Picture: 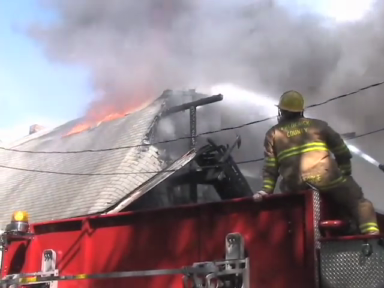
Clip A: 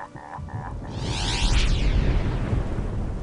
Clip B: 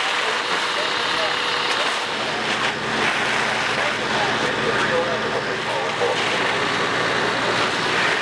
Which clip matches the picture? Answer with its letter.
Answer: B